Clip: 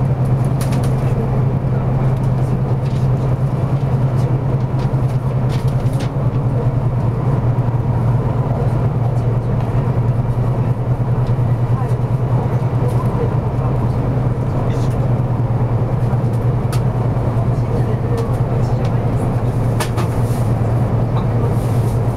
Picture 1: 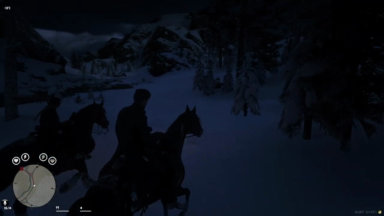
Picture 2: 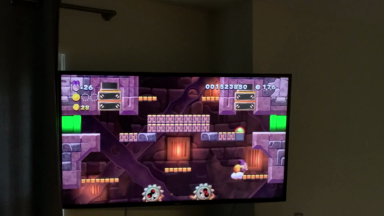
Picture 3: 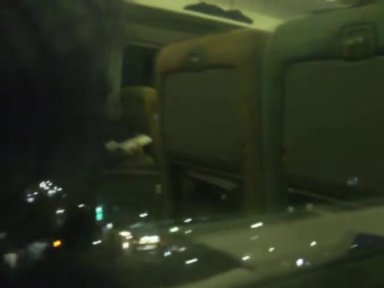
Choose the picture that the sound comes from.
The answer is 3